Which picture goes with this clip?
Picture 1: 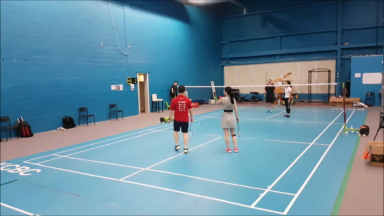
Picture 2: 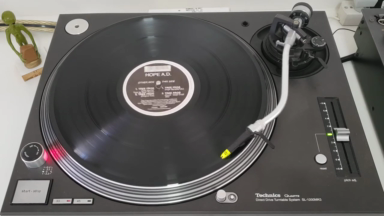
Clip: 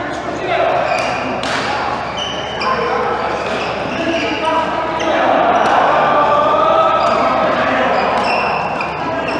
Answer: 1